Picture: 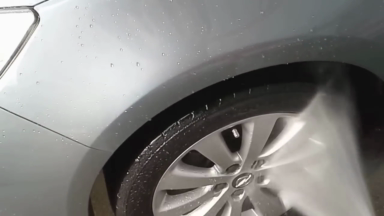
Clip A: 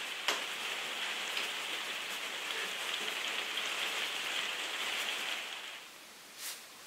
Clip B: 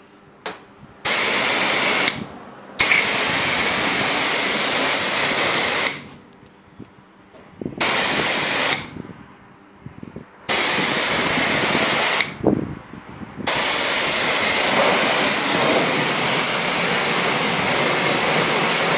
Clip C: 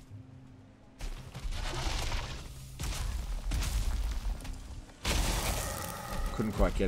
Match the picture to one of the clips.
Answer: B